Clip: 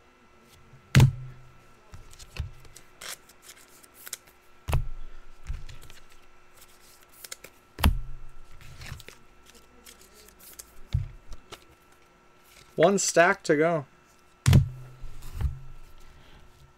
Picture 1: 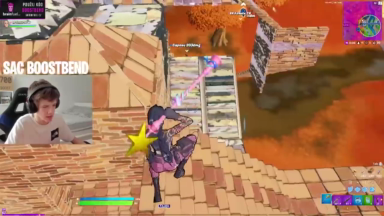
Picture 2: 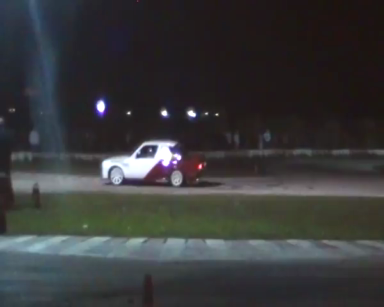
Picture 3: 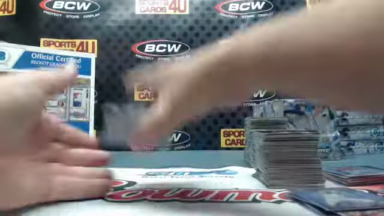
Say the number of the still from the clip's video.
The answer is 3